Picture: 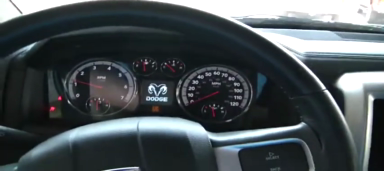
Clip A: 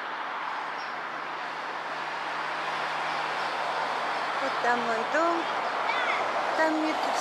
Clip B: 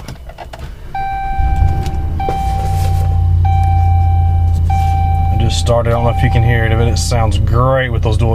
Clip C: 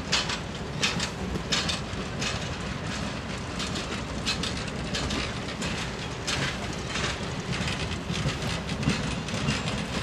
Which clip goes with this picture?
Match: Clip B